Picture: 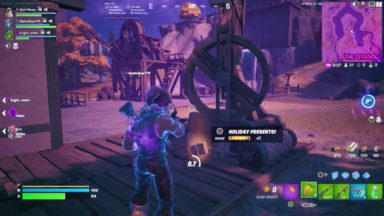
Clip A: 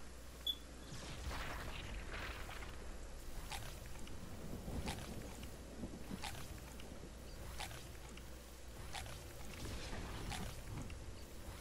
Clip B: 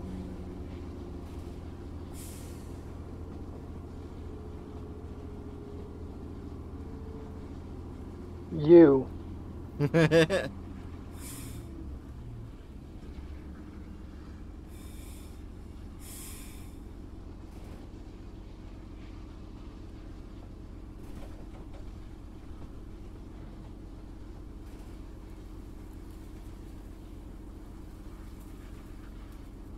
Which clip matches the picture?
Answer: A